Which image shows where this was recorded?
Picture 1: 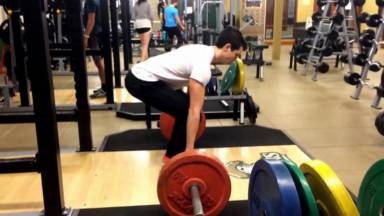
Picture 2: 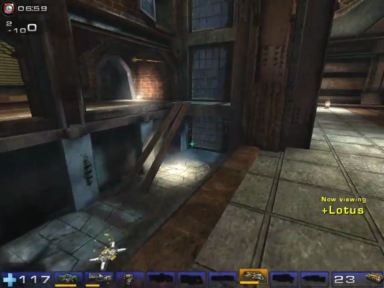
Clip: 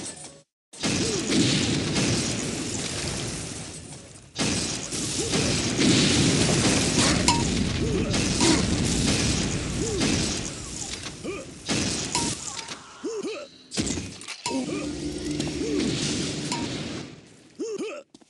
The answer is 2